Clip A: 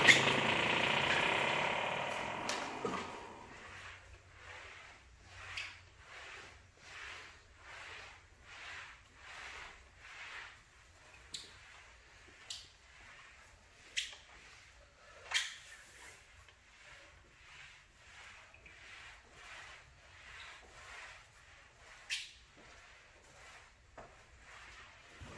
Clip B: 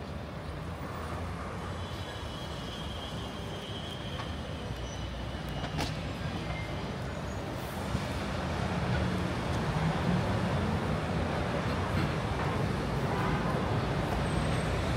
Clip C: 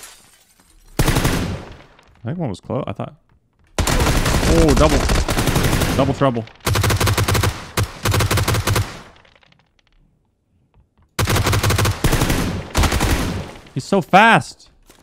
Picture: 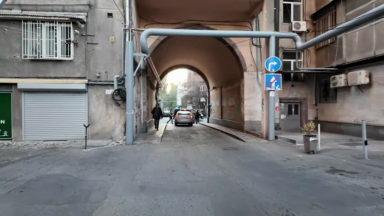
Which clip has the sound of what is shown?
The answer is B